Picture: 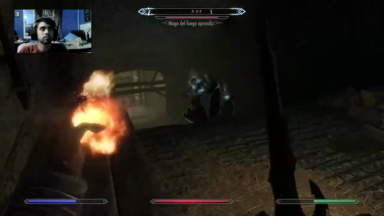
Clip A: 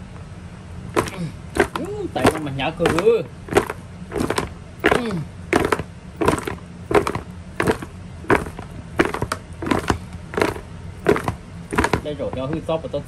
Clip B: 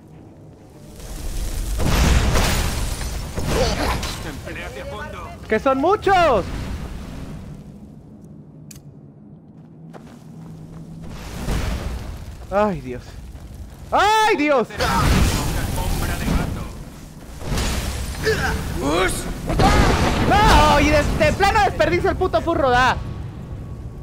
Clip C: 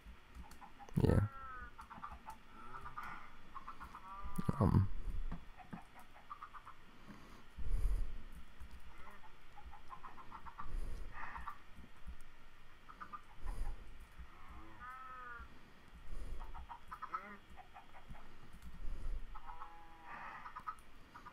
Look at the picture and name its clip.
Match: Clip B